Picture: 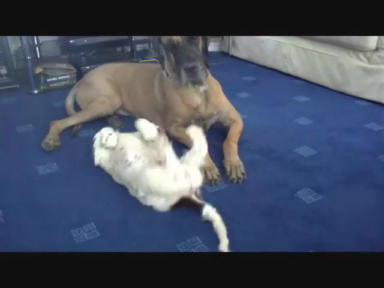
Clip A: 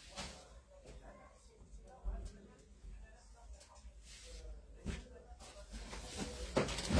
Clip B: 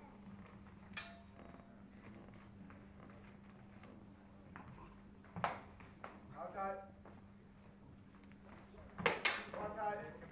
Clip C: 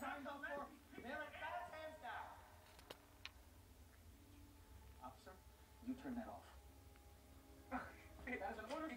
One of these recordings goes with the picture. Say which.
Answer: C